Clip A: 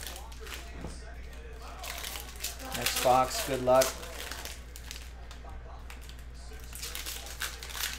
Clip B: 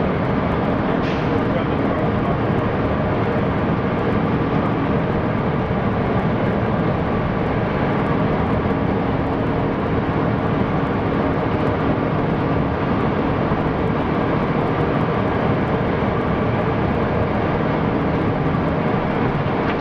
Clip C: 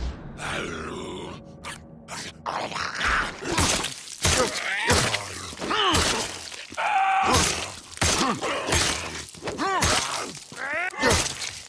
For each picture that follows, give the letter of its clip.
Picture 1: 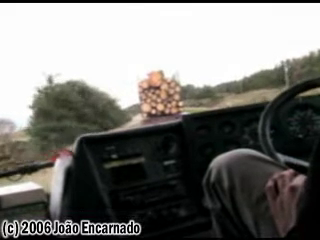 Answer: B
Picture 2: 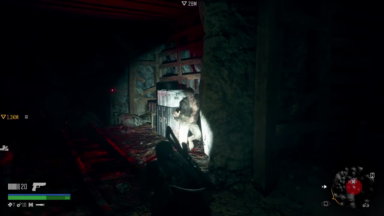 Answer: C